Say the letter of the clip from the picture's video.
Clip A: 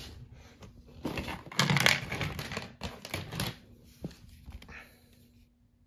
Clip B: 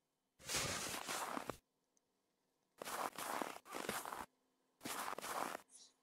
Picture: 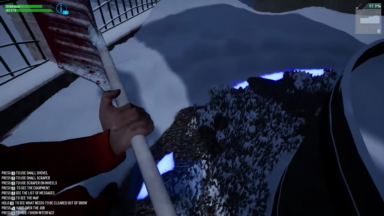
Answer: B